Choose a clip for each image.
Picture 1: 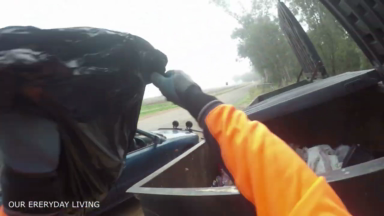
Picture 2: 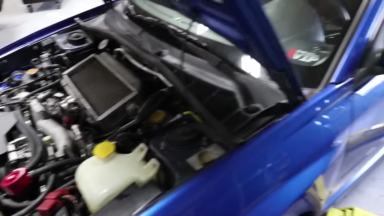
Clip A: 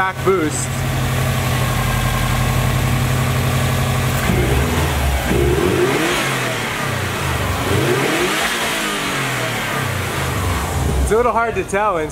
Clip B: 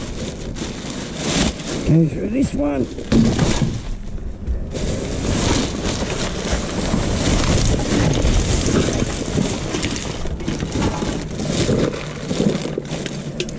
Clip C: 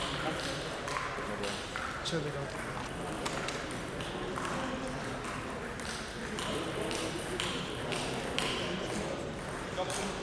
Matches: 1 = B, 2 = A